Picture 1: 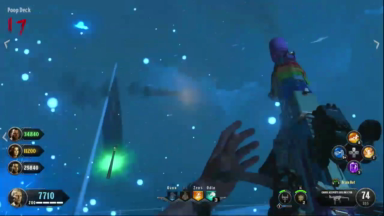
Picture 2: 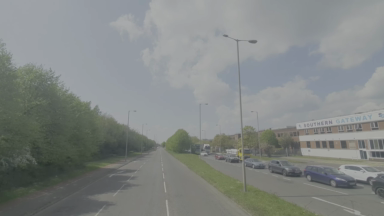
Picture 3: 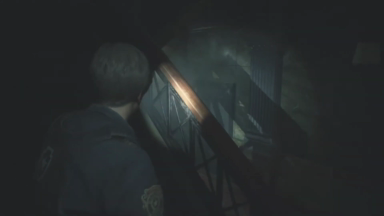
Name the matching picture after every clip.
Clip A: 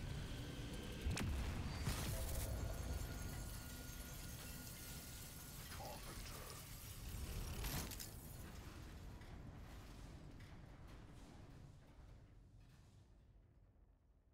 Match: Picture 1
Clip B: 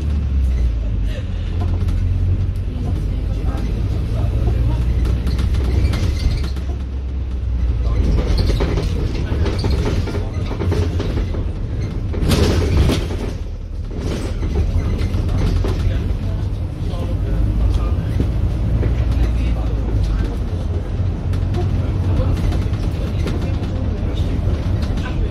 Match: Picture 2